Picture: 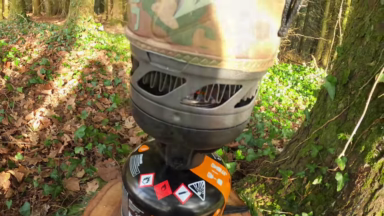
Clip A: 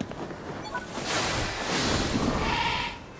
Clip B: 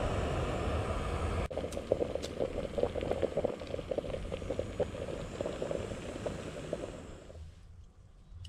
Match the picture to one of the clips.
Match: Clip B